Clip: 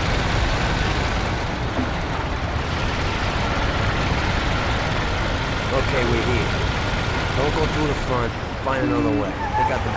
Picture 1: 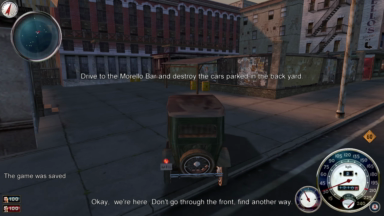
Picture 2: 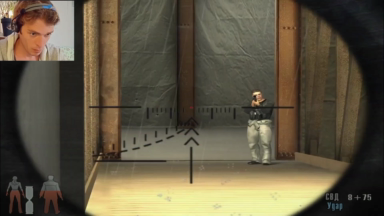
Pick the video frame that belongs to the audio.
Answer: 1